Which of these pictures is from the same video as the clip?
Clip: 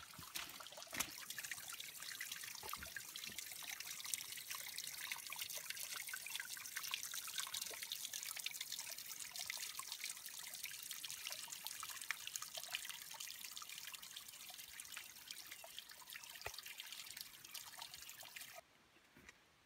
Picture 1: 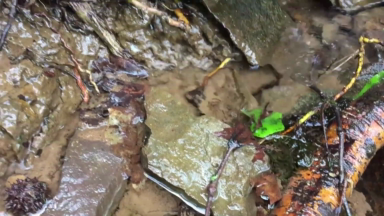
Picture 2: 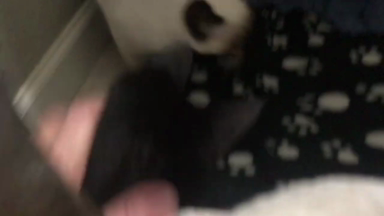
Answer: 1